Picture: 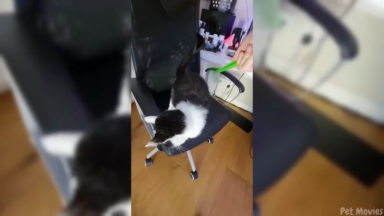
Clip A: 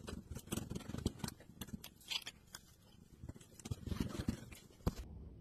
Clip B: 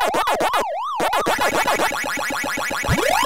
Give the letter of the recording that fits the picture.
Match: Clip A